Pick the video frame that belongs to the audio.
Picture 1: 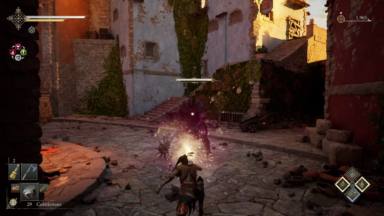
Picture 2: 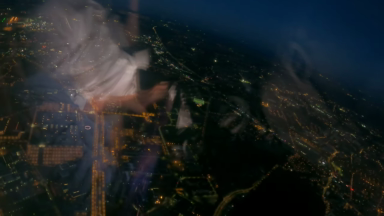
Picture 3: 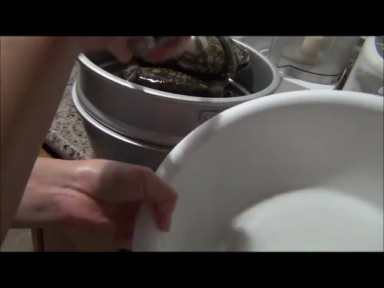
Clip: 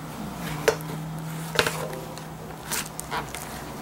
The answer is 3